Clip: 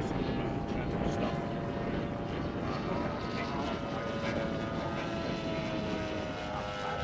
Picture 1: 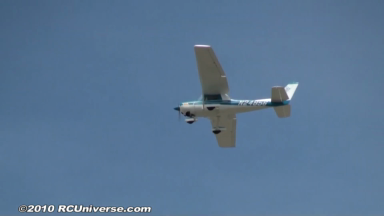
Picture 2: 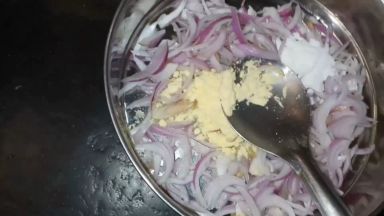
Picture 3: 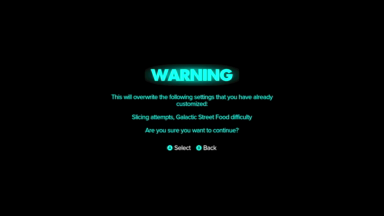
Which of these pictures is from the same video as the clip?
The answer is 1